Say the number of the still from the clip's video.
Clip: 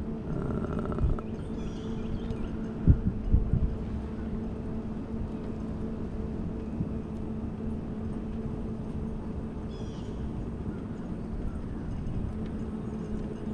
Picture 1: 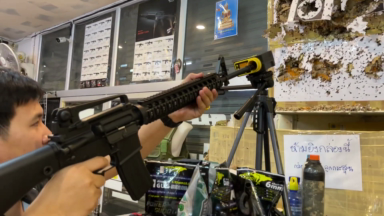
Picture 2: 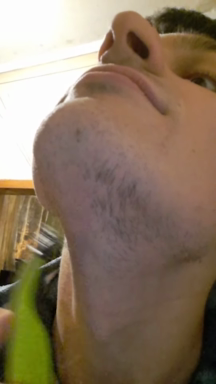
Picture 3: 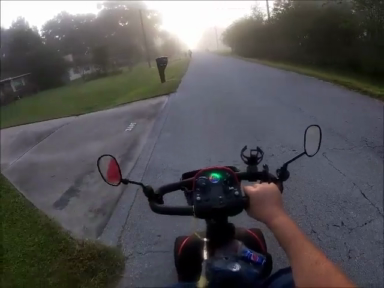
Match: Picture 3